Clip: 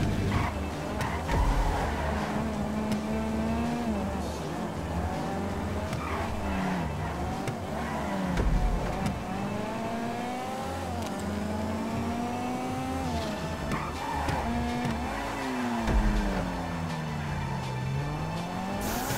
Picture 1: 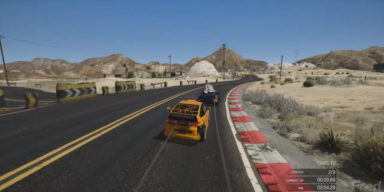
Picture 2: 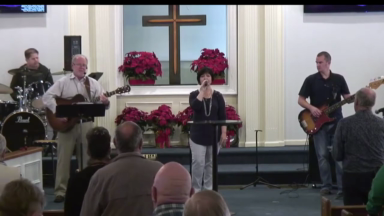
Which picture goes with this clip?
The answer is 1